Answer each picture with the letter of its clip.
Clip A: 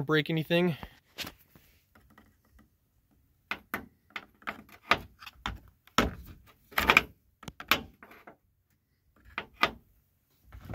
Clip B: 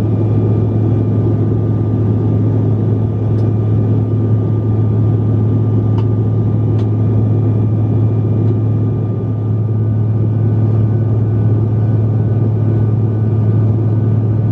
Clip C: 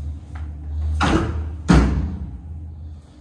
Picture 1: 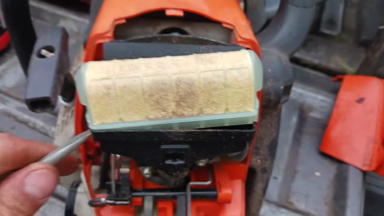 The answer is A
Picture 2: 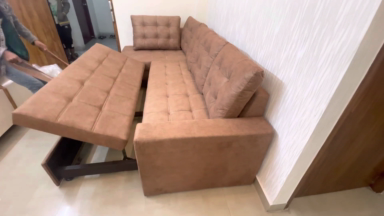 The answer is C